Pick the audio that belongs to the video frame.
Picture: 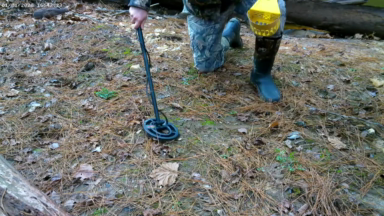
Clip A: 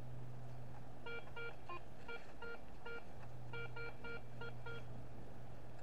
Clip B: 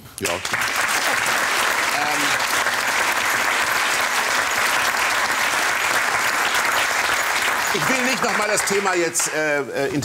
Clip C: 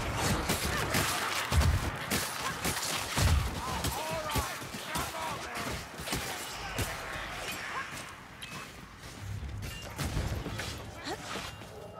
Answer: A